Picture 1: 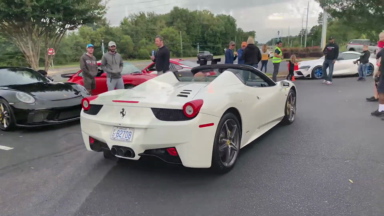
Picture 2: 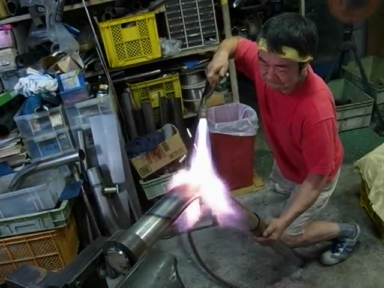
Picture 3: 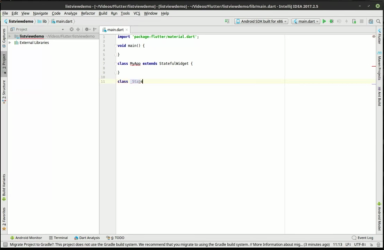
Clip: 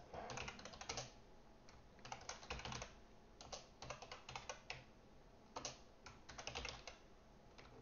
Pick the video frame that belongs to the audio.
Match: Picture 3